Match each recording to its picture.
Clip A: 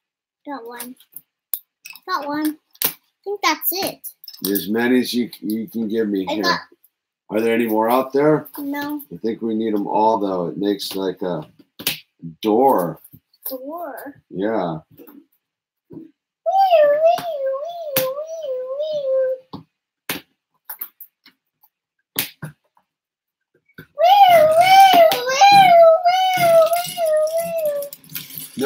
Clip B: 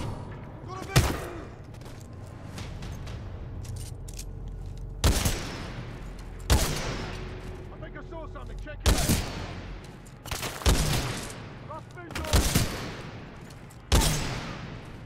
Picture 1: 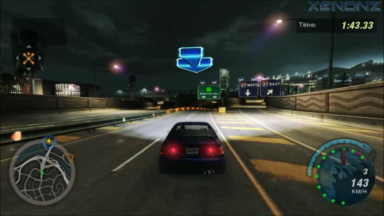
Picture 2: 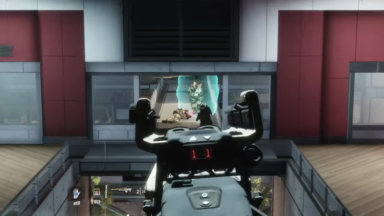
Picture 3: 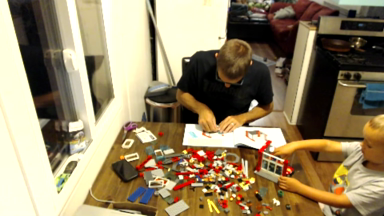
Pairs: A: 3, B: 2